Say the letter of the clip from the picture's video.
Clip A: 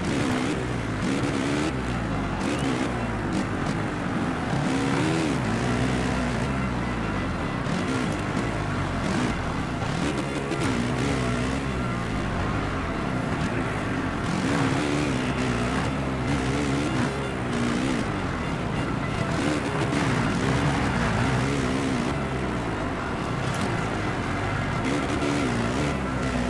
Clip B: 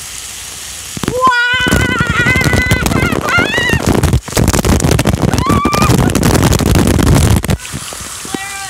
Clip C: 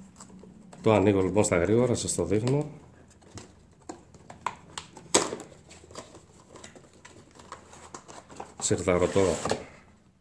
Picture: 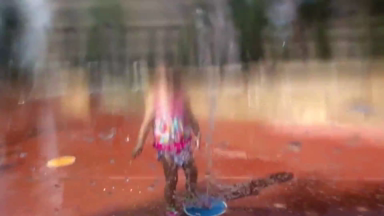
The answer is B